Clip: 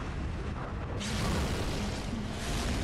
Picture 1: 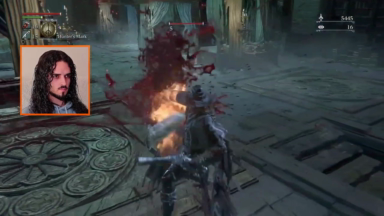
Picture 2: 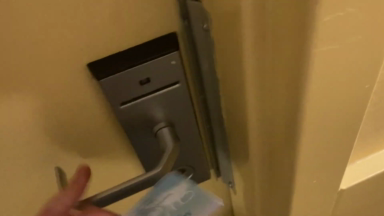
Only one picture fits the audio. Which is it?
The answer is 1